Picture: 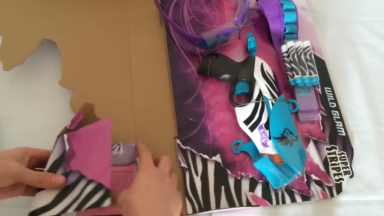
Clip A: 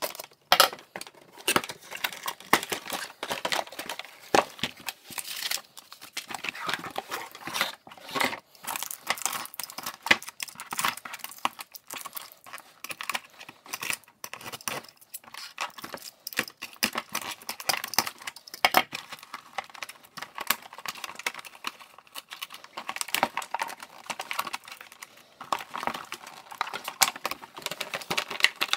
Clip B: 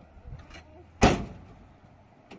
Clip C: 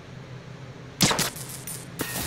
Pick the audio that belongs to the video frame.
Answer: A